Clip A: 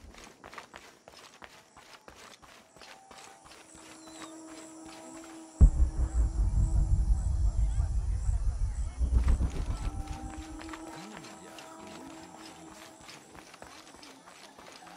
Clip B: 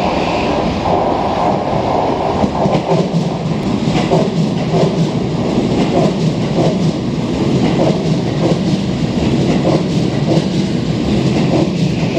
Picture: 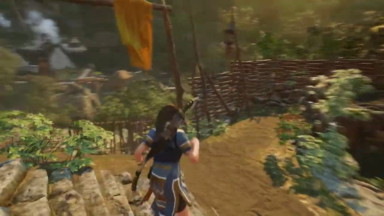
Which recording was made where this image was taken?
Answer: A